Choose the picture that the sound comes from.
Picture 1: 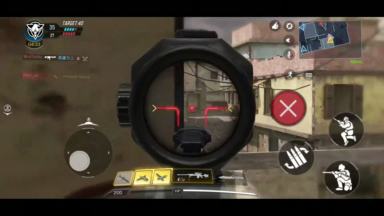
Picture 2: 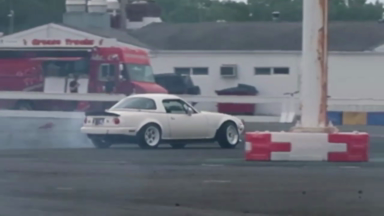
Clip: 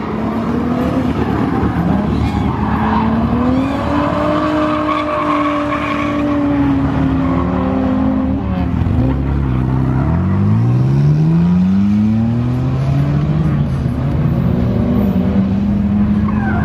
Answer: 2